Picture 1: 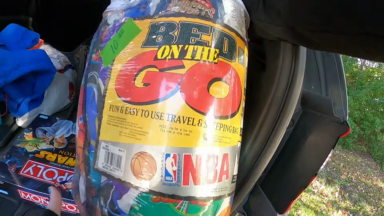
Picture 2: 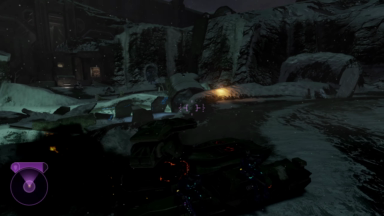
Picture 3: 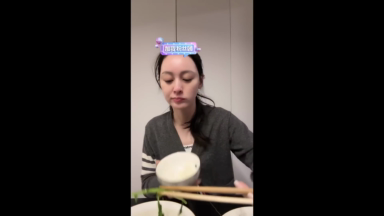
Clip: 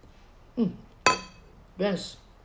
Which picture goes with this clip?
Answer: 3